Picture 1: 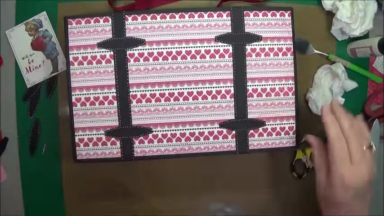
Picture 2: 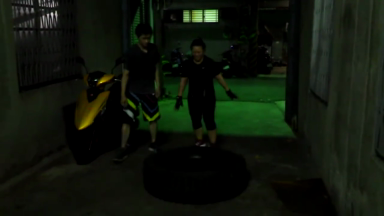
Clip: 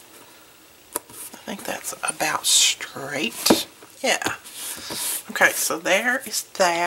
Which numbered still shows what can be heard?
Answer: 1